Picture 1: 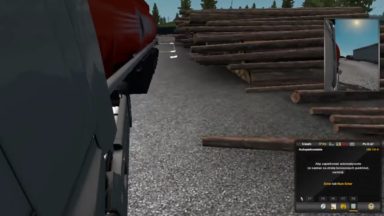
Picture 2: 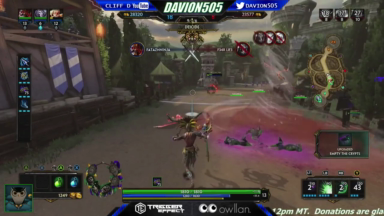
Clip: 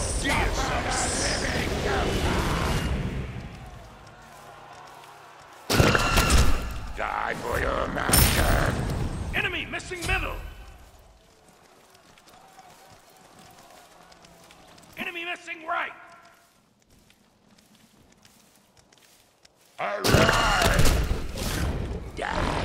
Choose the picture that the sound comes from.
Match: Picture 2